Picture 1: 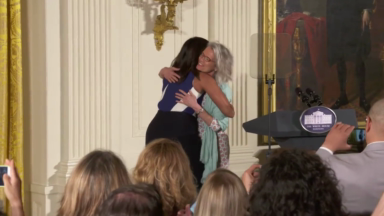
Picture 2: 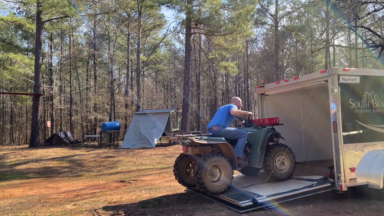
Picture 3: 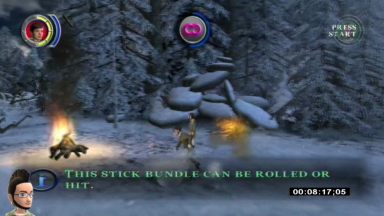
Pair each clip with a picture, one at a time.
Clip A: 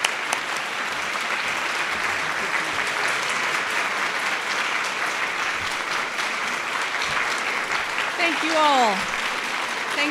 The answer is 1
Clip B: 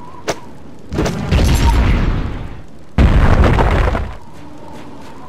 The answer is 3